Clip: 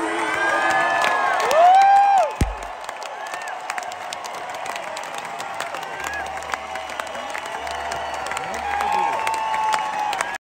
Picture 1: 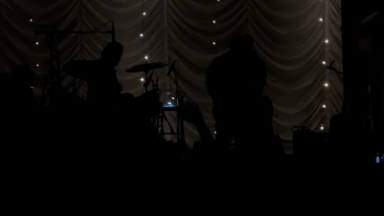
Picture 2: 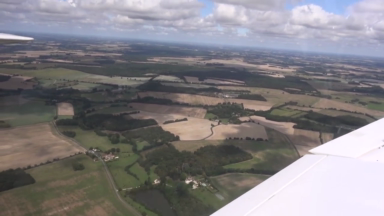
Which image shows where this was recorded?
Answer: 1